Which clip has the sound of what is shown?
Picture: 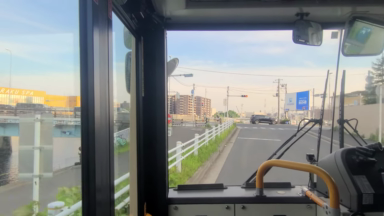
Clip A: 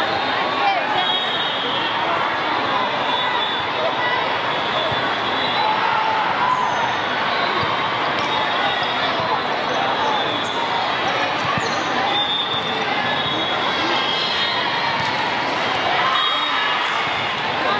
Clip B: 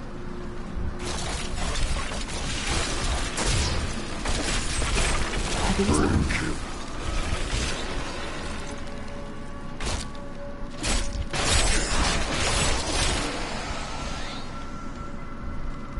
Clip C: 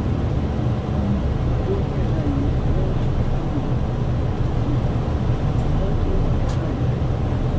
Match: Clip C